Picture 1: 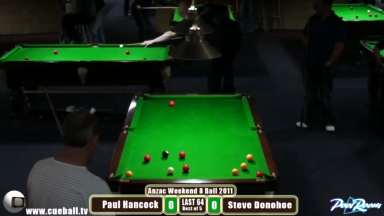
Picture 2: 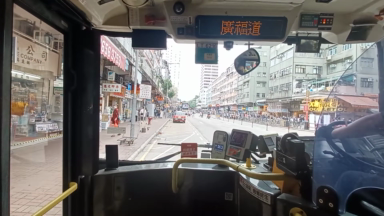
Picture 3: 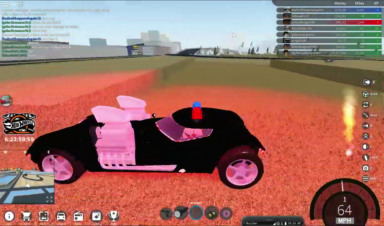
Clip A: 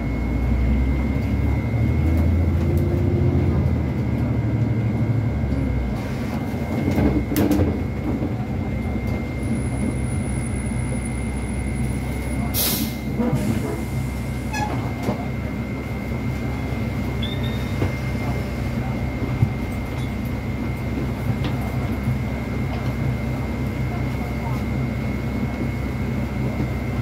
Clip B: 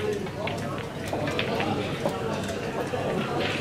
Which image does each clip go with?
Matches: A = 2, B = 1